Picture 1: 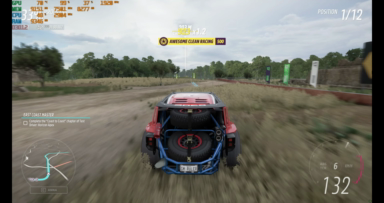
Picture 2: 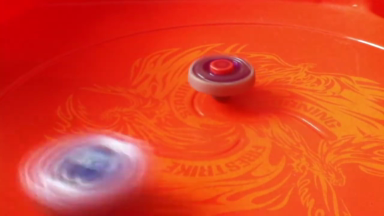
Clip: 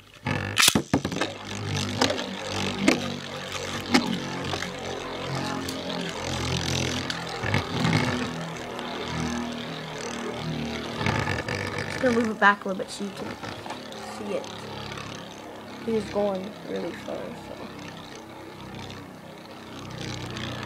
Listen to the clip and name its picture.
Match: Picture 2